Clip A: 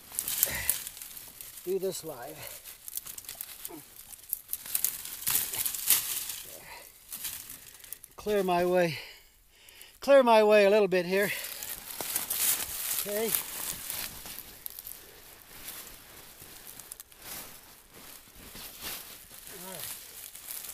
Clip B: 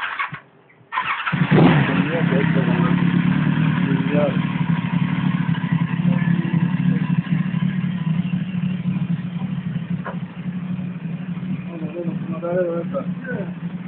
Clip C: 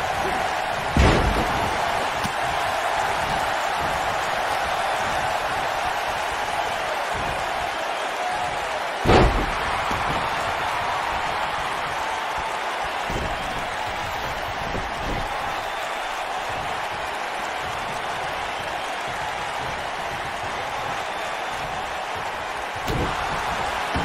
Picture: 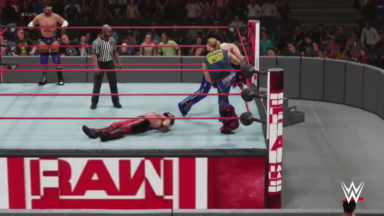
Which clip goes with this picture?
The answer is C